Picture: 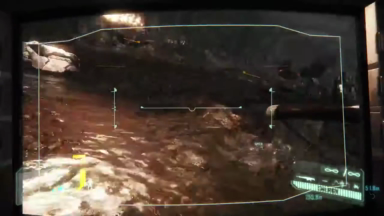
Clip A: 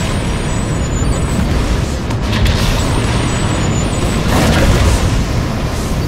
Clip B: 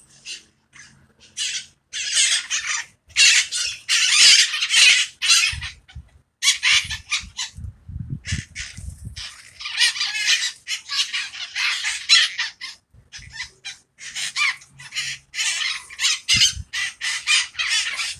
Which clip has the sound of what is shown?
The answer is A